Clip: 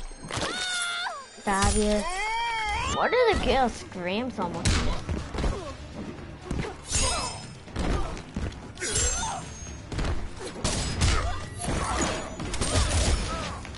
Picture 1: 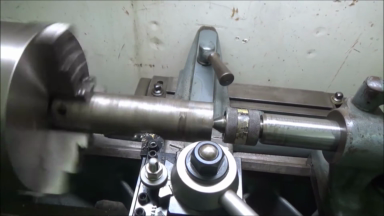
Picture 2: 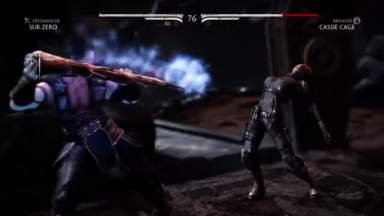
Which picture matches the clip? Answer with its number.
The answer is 2